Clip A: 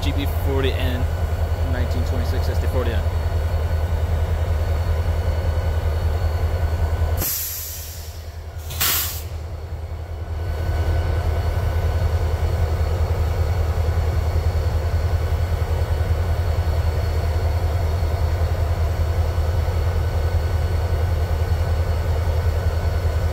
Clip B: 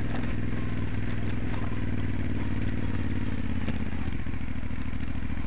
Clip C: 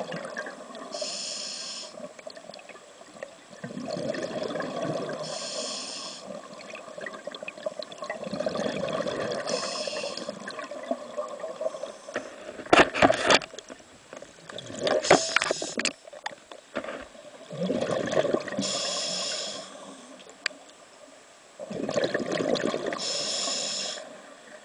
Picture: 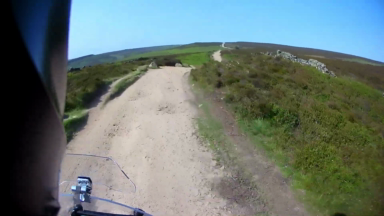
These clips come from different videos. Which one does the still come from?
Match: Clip B